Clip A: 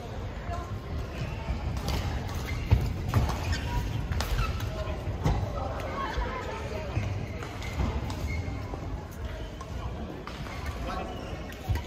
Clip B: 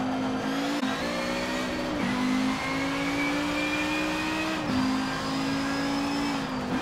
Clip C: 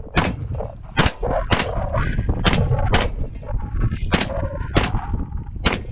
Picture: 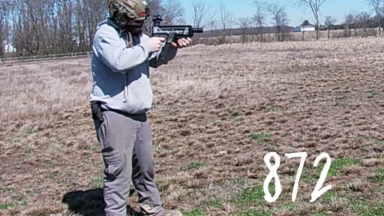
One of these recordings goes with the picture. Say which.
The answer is C